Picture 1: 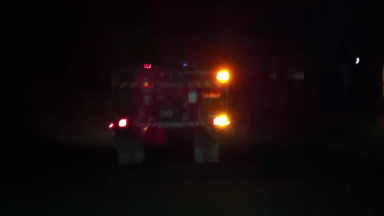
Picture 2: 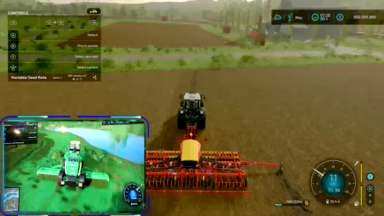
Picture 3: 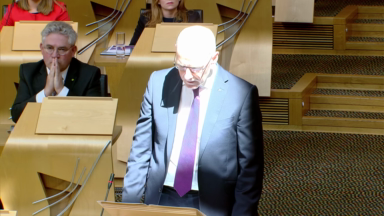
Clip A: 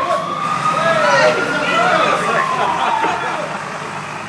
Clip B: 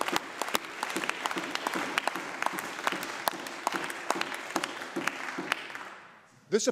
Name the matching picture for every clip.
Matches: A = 1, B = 3